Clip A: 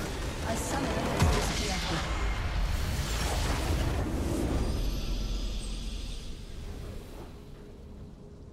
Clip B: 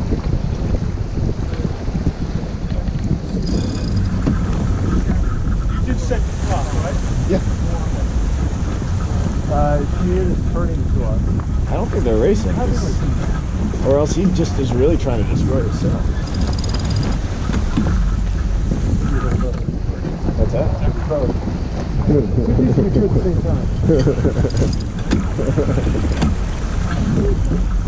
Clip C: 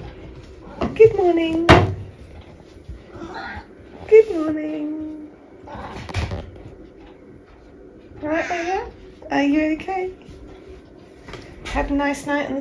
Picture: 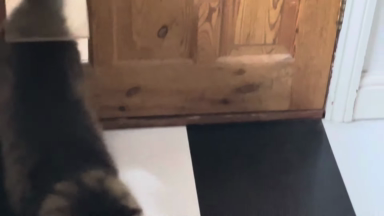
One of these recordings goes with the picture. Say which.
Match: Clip C